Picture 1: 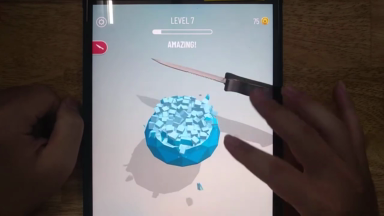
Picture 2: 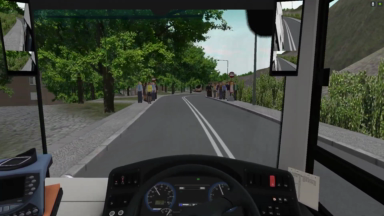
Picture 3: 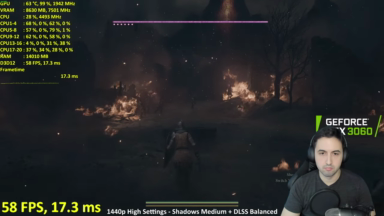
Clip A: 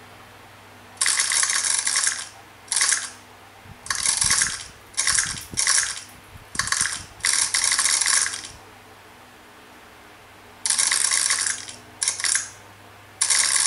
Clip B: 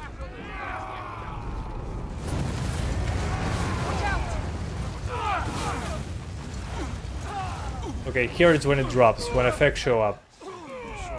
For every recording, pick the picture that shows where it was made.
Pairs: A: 1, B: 3